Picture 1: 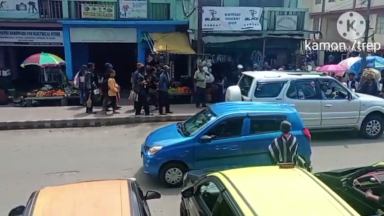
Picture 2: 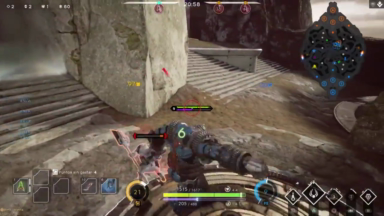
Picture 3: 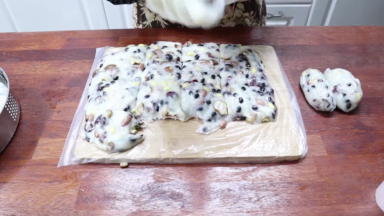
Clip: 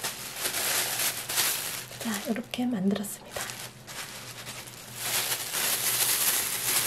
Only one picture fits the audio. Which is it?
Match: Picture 3